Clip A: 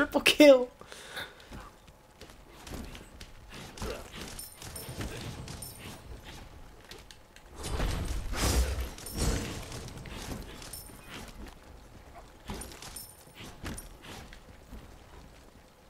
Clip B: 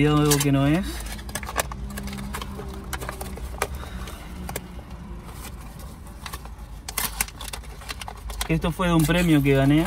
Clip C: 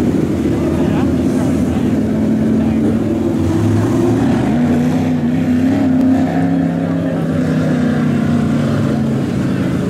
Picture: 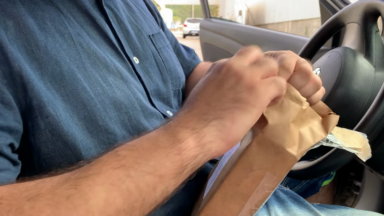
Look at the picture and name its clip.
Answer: B